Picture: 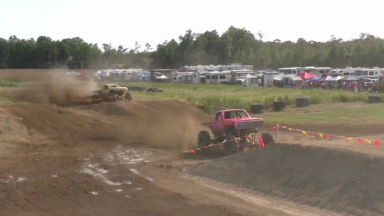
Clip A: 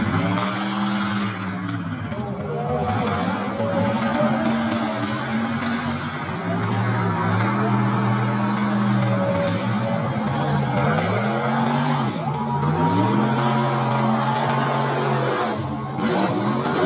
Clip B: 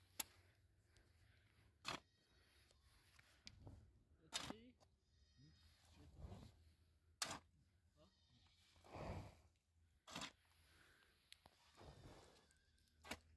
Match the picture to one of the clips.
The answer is A